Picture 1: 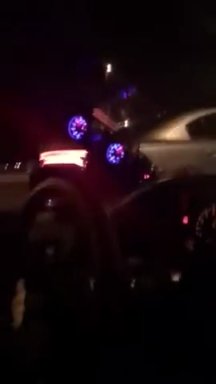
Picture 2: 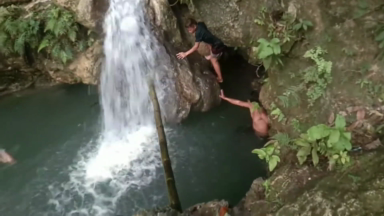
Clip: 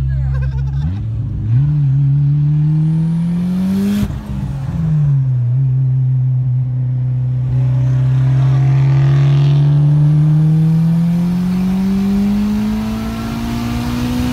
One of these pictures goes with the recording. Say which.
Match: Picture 1